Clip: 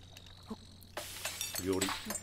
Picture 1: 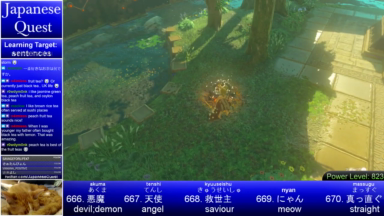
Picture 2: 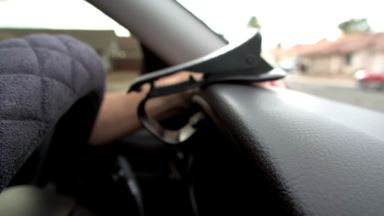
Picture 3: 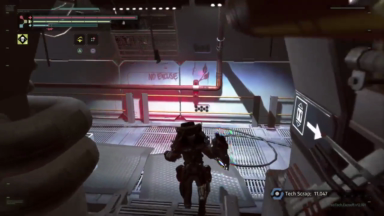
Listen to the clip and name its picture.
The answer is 1